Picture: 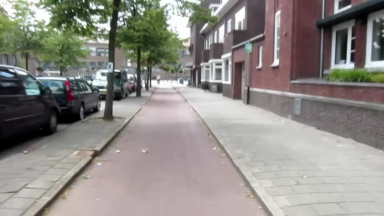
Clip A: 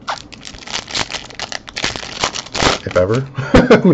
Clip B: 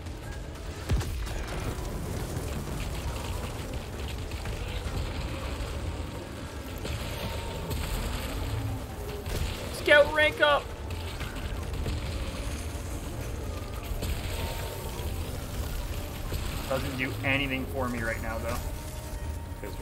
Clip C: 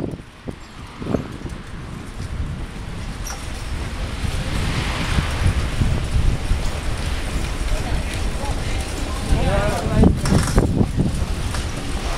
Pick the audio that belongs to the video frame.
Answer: C